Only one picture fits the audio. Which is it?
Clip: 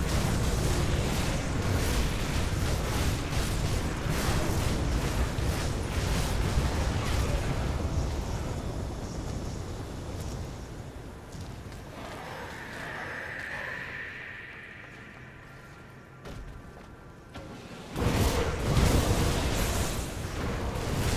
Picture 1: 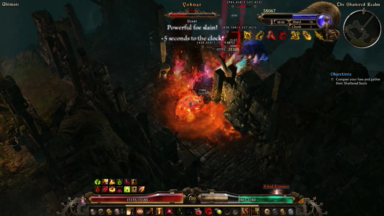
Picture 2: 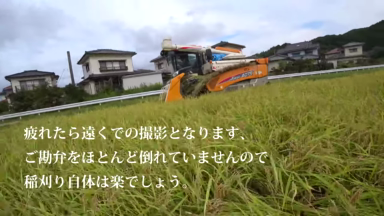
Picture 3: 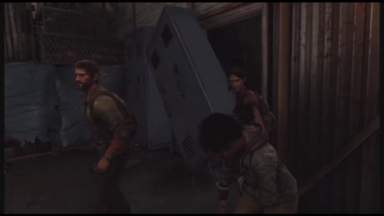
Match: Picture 1